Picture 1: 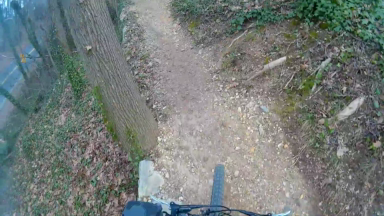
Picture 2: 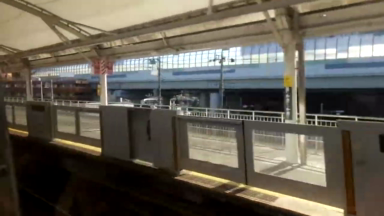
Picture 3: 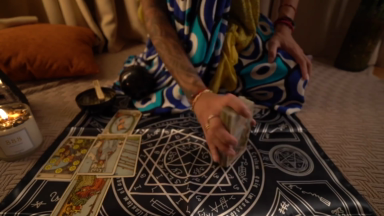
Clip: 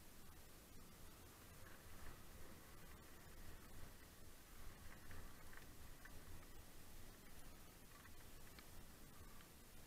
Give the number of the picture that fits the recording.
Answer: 1